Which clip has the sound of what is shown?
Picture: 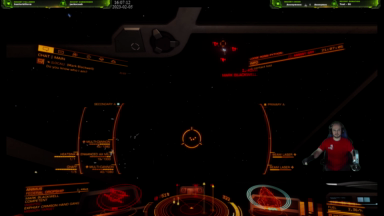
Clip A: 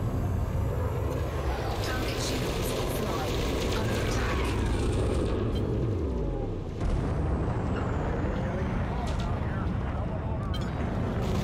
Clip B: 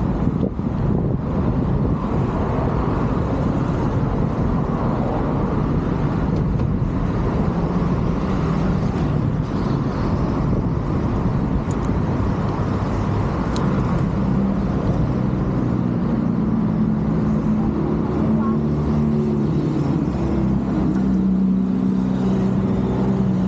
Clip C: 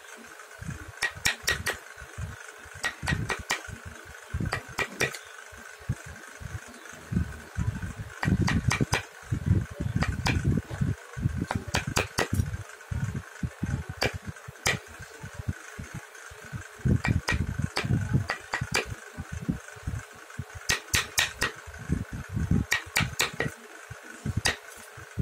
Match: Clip A